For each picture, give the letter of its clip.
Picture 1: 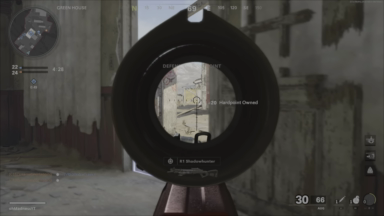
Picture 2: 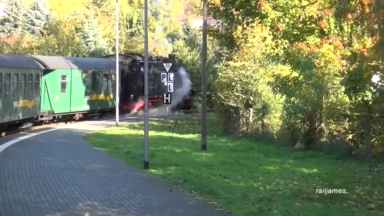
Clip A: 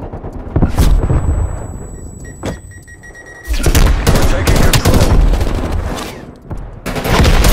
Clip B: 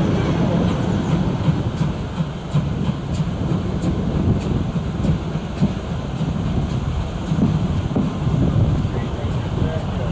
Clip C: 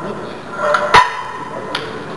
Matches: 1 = A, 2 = B